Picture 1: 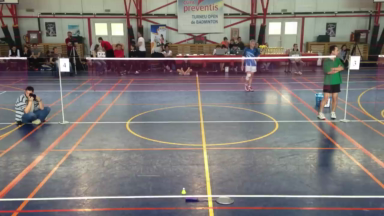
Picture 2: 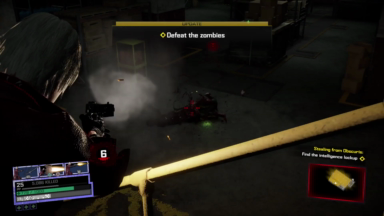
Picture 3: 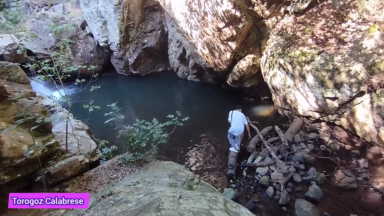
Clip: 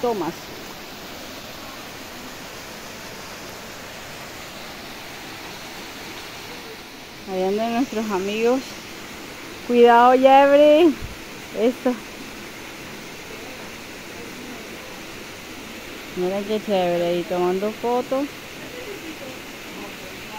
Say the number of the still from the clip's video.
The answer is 3